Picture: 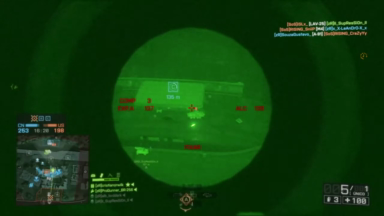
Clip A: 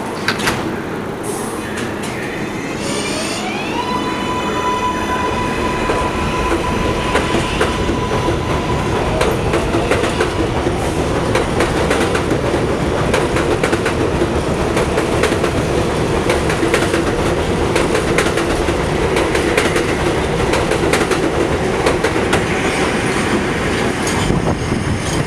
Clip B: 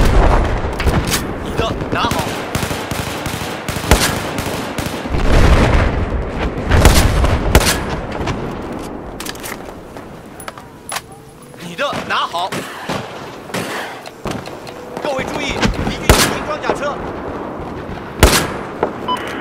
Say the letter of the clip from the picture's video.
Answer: B